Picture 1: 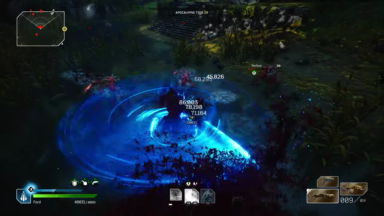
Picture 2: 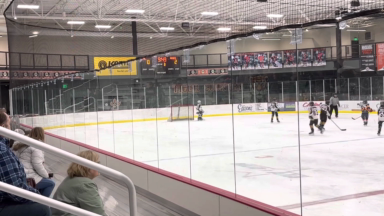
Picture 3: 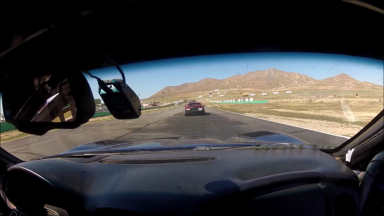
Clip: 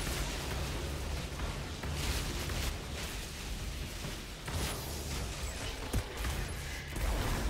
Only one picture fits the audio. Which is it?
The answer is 1